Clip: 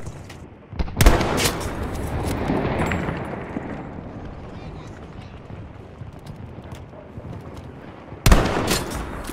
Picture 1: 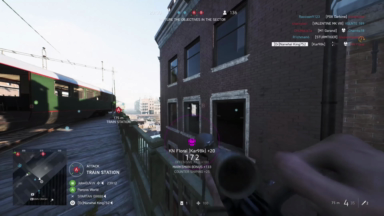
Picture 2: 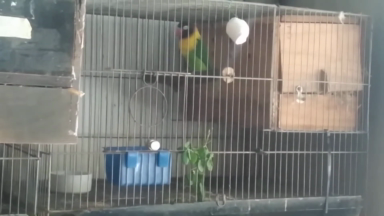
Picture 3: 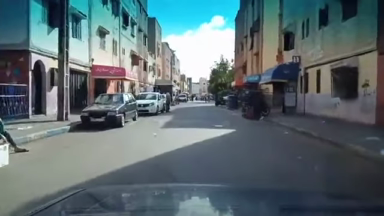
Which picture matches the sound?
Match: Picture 1